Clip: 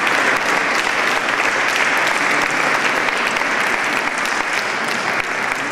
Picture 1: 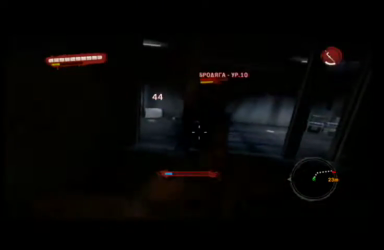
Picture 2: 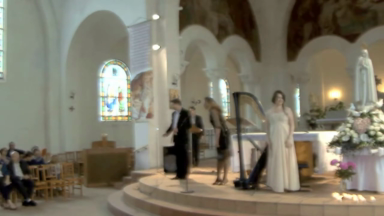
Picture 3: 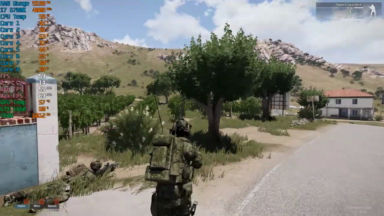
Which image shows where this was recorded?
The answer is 2